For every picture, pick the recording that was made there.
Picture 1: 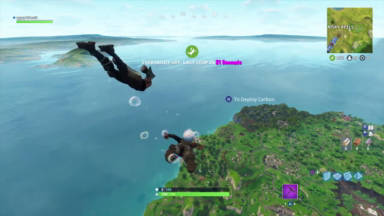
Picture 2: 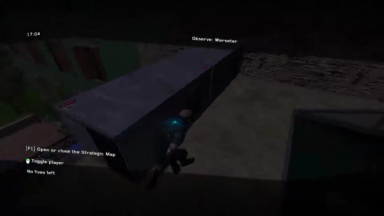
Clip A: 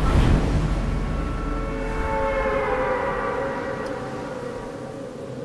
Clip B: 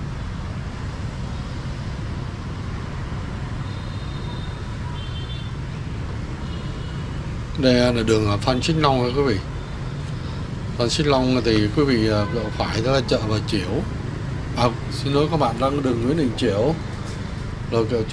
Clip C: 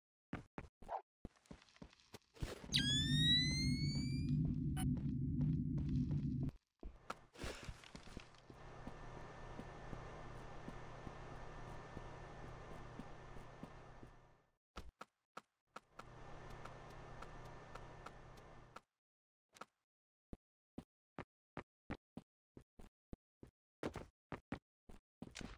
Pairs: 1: A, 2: C